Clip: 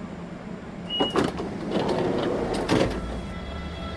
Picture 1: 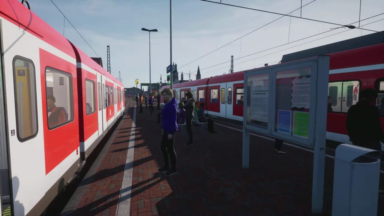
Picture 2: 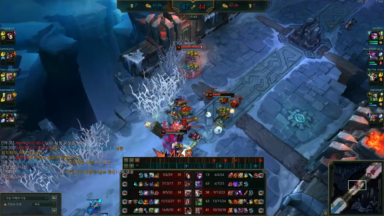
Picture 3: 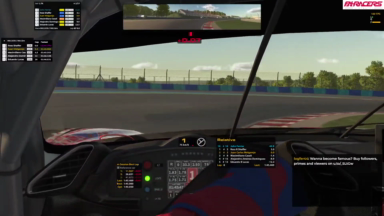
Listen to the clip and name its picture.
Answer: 1